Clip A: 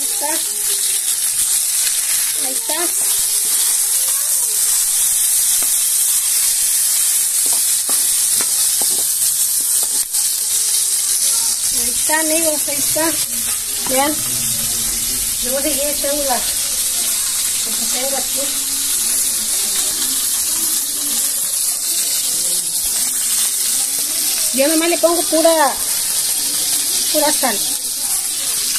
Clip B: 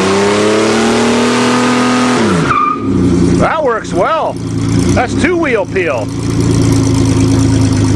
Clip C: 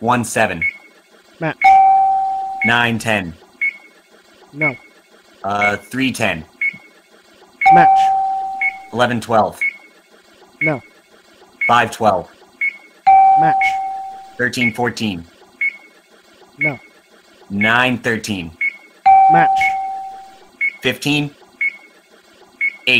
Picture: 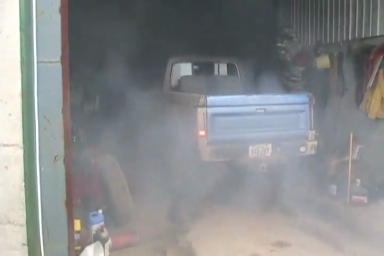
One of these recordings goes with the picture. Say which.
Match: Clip B